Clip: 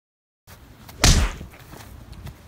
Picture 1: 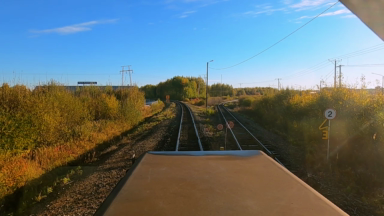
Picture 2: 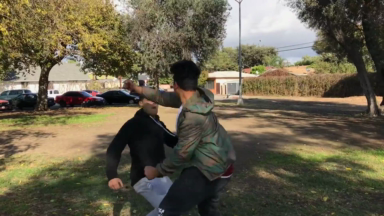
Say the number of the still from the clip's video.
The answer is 2